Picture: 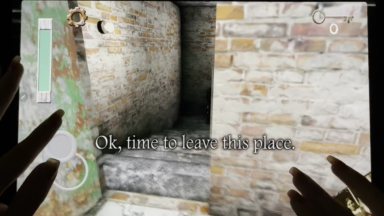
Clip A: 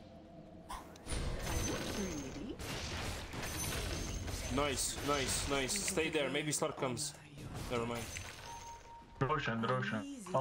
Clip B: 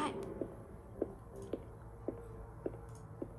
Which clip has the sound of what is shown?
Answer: B